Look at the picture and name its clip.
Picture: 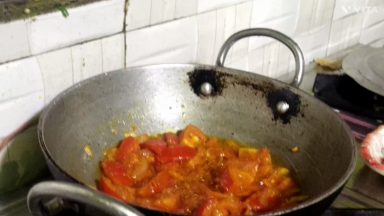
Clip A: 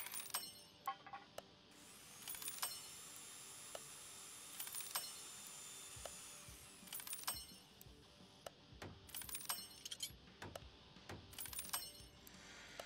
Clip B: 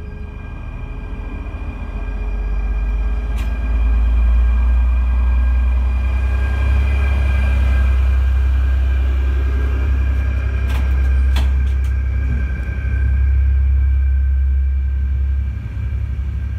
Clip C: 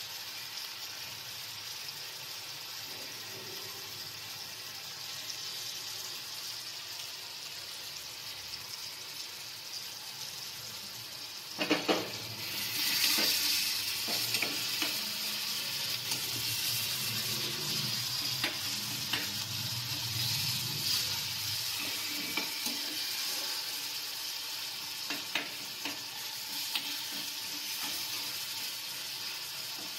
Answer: C